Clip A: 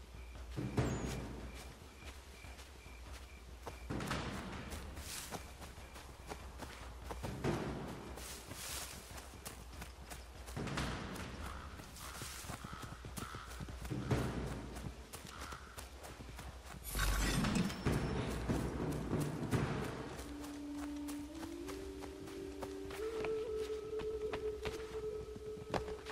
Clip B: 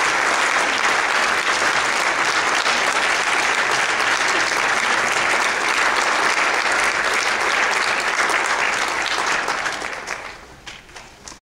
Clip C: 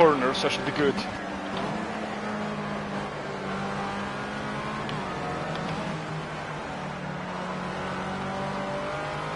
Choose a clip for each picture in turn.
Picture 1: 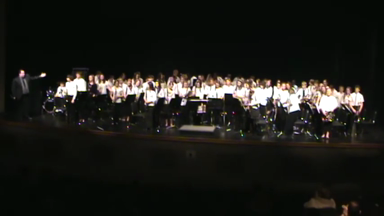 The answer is B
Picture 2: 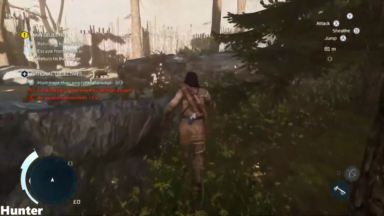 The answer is A